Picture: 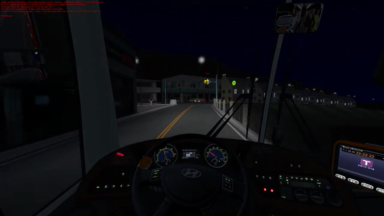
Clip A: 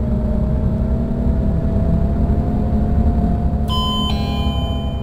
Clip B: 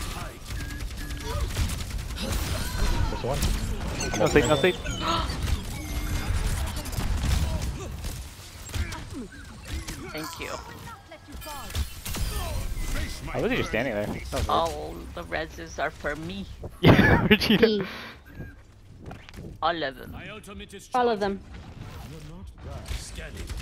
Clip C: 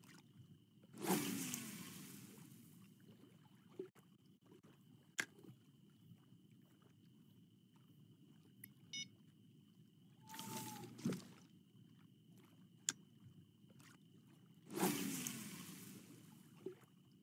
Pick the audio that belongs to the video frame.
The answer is A